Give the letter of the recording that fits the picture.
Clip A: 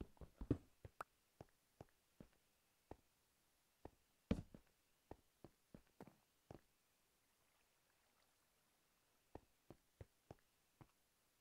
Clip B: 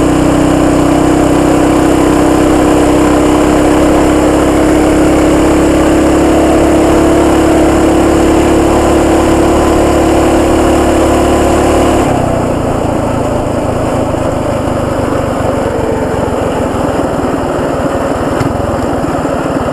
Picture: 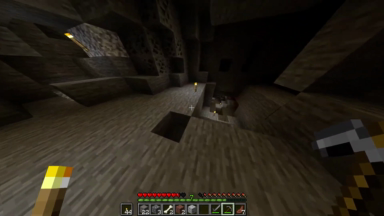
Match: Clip A